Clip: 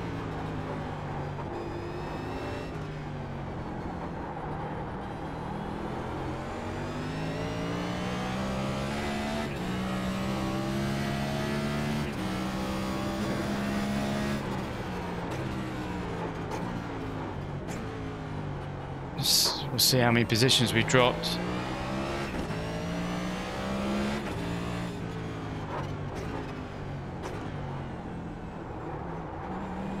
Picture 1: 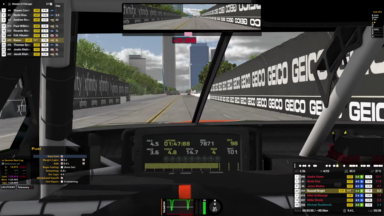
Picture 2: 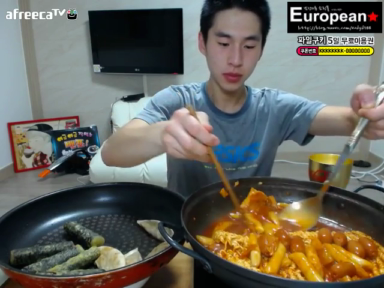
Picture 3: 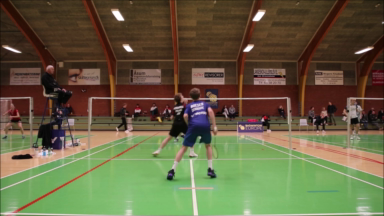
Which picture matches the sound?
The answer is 1